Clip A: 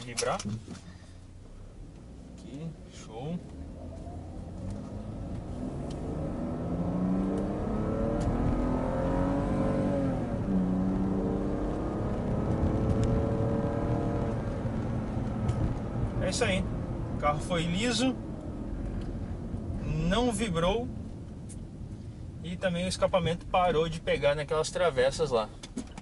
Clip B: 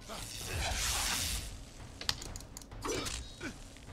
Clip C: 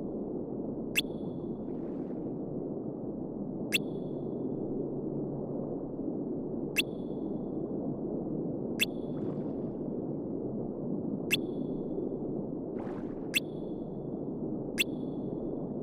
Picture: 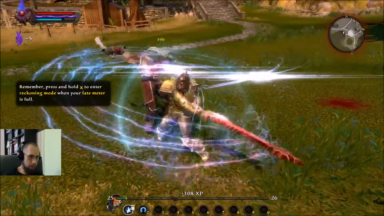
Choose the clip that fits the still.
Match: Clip B